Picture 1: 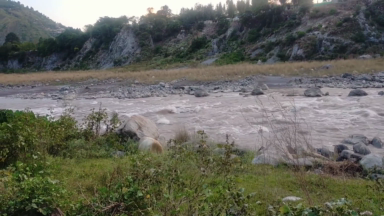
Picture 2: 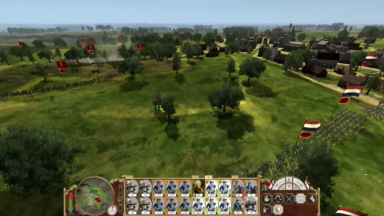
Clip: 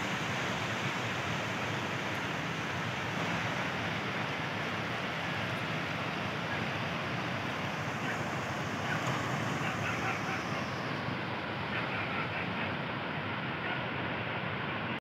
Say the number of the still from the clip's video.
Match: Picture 1